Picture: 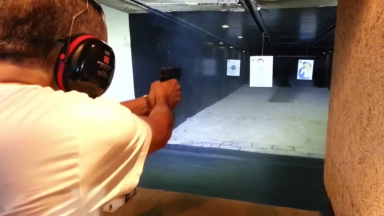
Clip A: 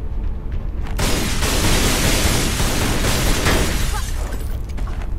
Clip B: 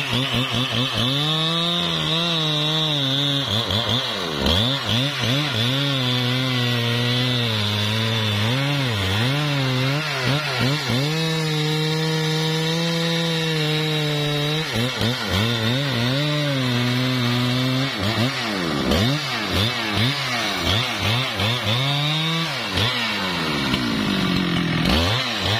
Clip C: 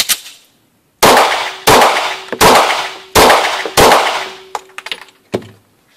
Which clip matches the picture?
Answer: C